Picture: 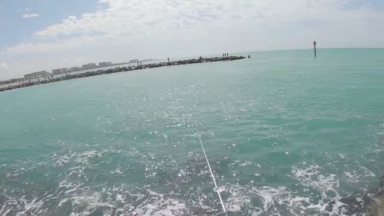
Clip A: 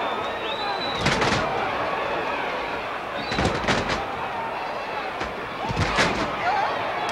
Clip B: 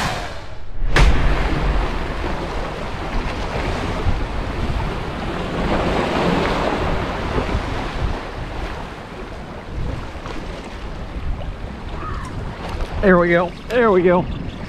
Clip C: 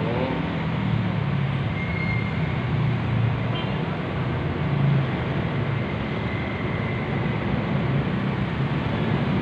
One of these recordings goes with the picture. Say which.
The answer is B